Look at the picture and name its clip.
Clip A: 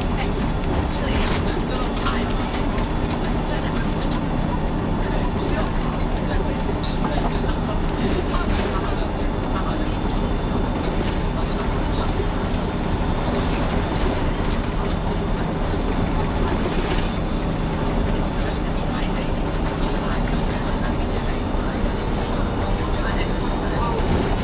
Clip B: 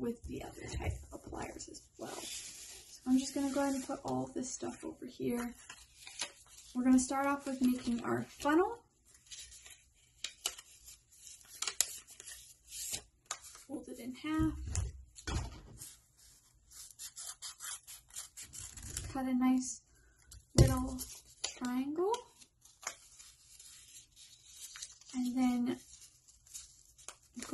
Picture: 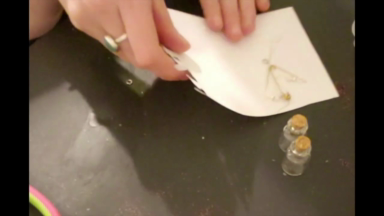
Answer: B